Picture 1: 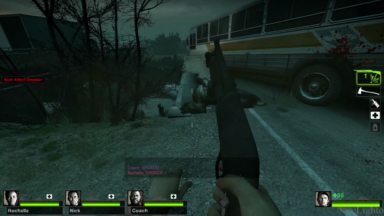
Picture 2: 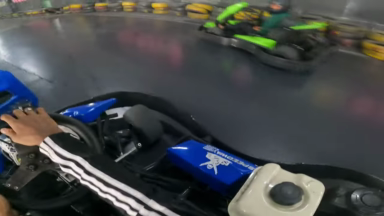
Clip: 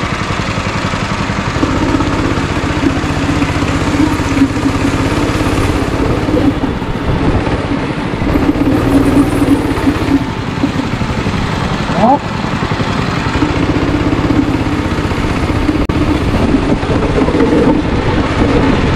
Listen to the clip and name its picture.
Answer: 2